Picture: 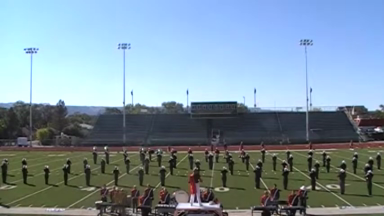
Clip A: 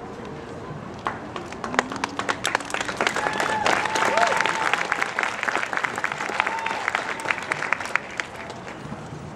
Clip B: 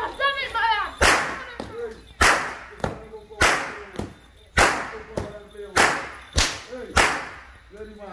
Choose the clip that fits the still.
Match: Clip A